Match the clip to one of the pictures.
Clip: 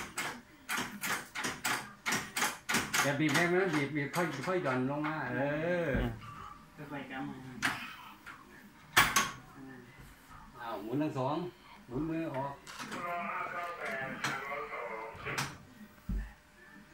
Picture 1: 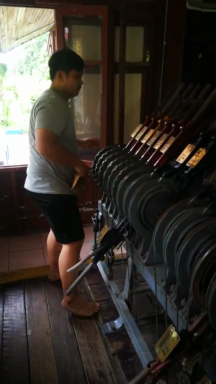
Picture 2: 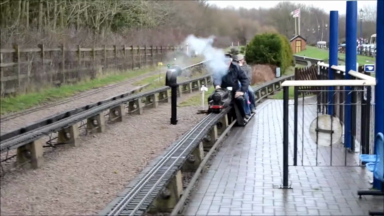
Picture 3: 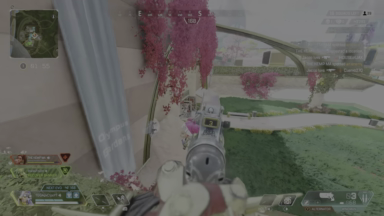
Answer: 1